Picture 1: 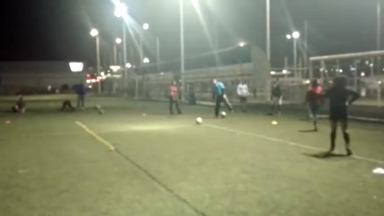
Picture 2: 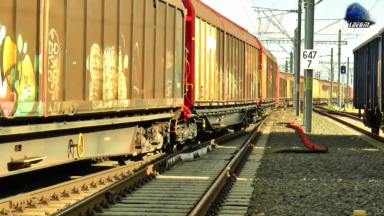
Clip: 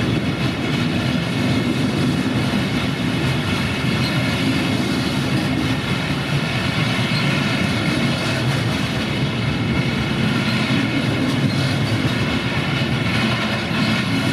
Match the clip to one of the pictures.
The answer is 2